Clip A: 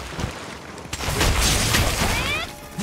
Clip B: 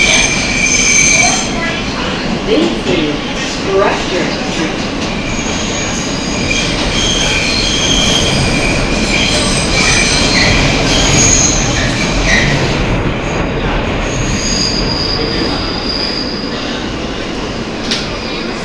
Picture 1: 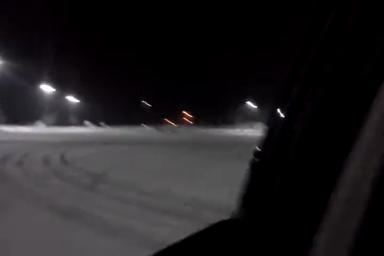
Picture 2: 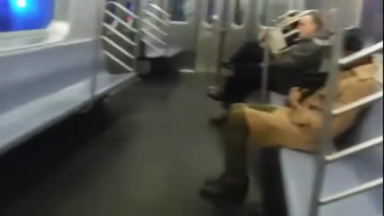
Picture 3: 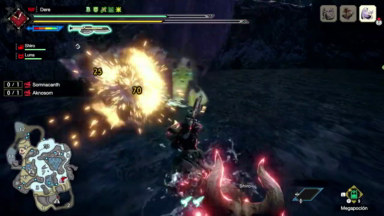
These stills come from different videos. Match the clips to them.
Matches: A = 3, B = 2